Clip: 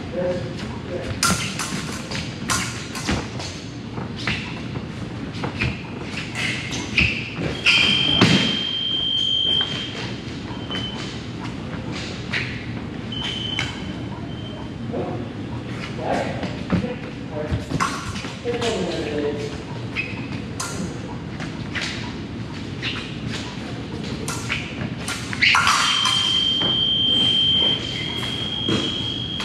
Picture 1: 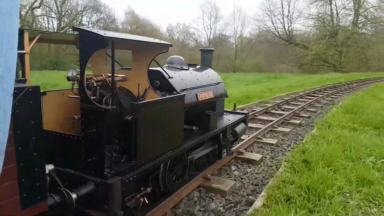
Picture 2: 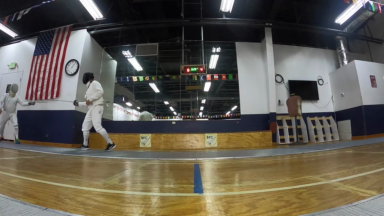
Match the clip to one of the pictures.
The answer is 2